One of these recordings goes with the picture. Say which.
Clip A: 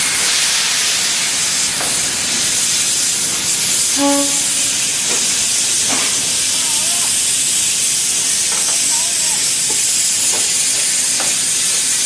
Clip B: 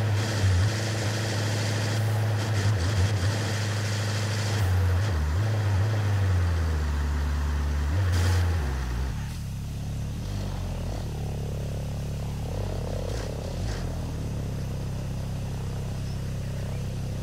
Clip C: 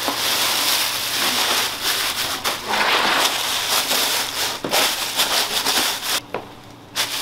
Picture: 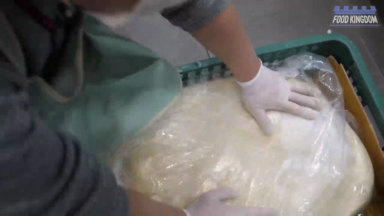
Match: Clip C